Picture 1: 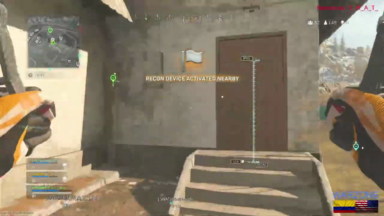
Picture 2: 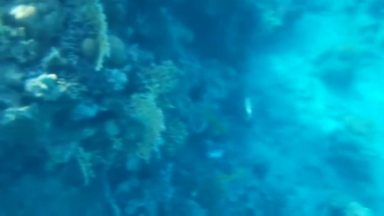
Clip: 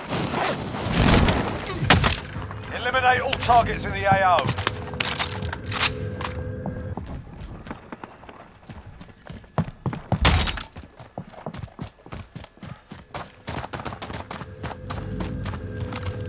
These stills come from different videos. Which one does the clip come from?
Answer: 1